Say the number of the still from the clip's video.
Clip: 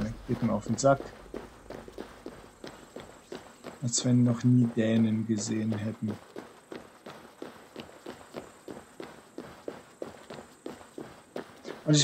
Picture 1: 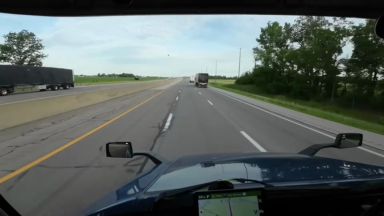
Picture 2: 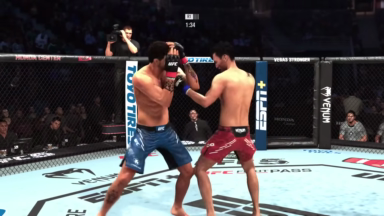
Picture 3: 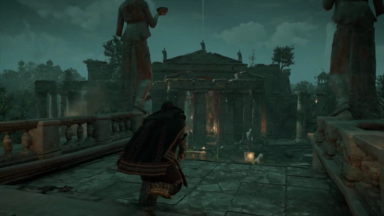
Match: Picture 3